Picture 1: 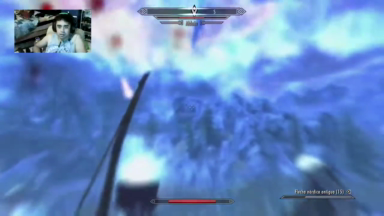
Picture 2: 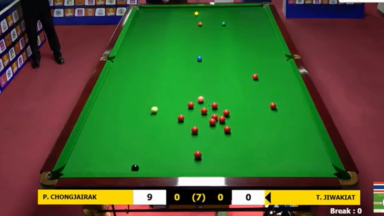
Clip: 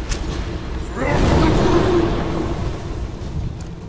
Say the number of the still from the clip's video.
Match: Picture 1